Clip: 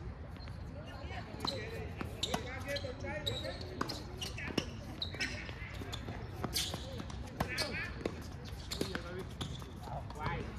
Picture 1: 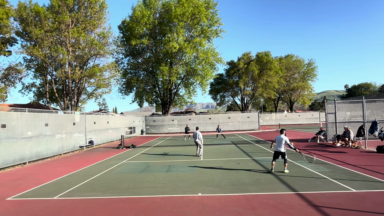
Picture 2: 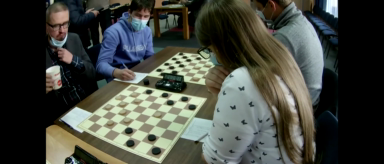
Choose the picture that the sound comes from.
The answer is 1